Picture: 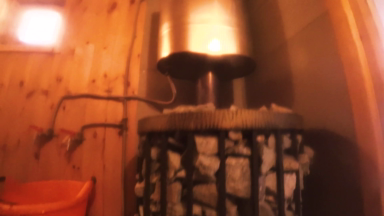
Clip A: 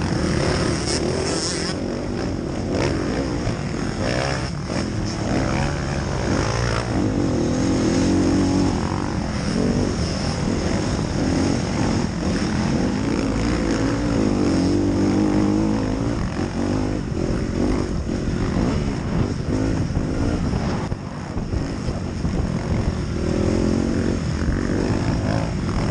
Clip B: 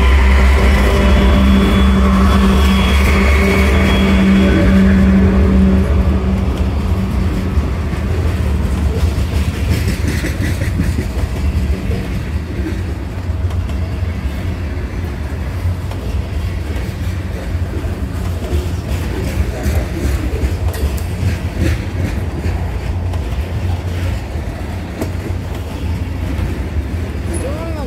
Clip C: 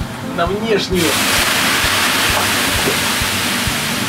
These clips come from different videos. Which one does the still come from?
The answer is C